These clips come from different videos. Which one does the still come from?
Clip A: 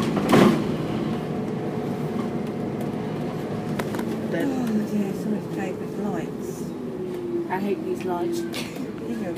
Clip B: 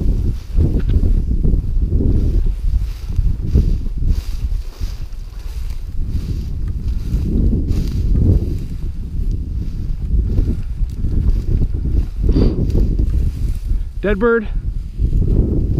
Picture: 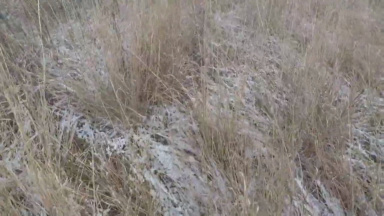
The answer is B